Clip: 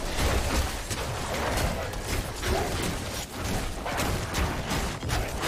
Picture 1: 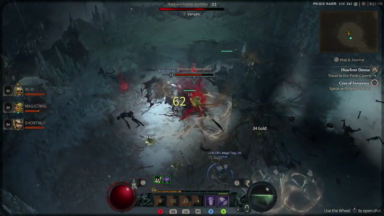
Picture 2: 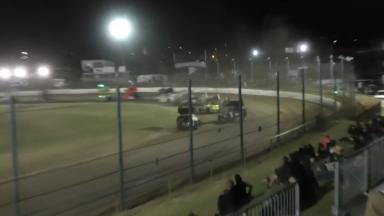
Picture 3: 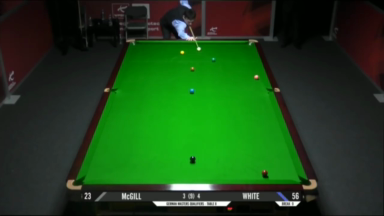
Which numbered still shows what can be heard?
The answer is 1